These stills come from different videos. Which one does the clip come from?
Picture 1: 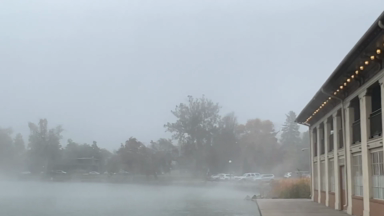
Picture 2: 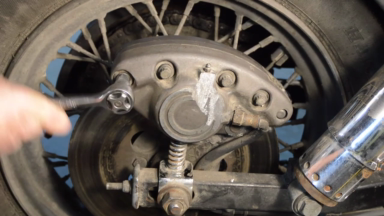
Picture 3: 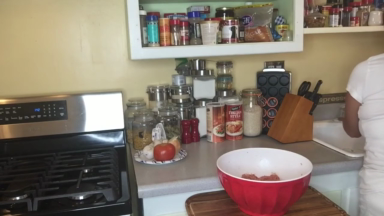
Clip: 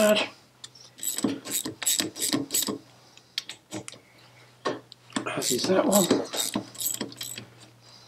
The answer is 2